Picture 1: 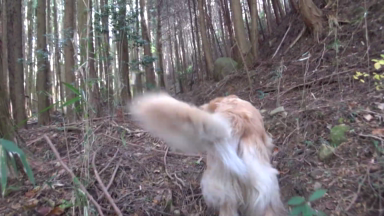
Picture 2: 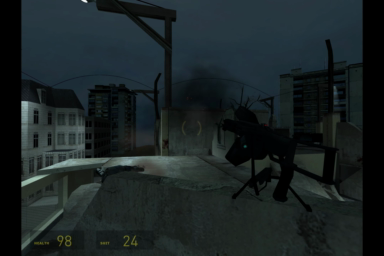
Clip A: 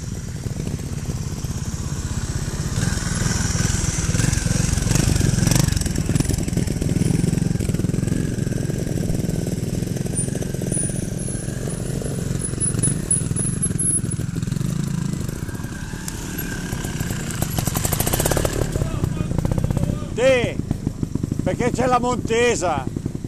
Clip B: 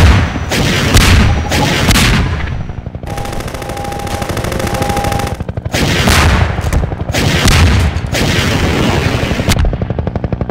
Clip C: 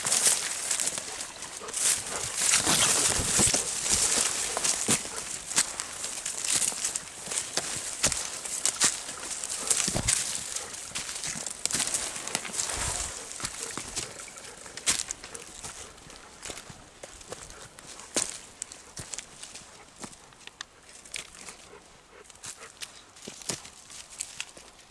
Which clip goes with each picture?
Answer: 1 C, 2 B